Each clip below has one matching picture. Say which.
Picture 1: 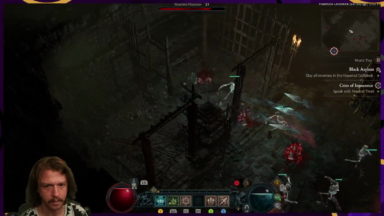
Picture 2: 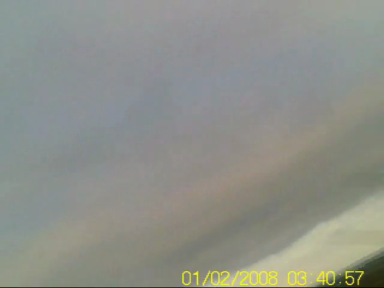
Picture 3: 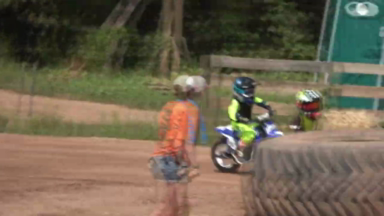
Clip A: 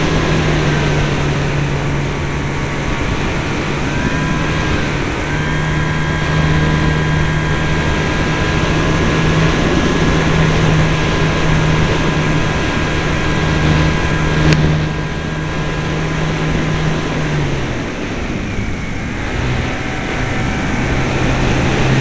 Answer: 2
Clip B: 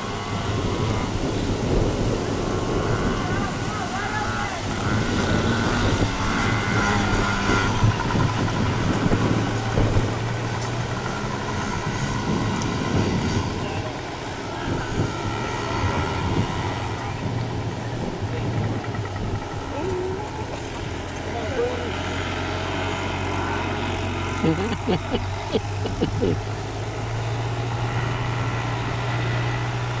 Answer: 3